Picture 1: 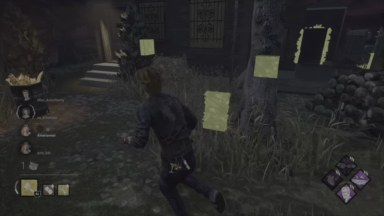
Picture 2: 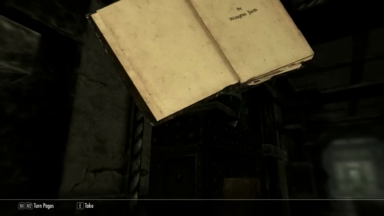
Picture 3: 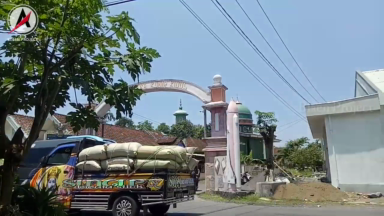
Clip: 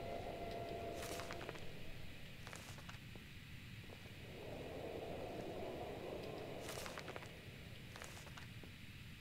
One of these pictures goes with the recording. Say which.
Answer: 2